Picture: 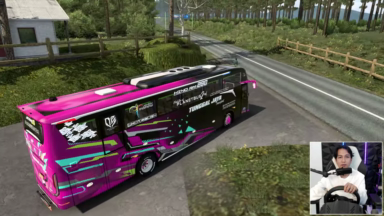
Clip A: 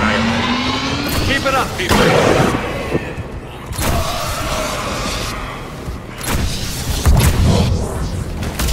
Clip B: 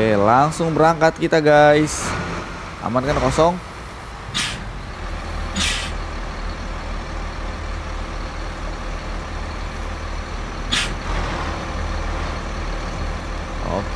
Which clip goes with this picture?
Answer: B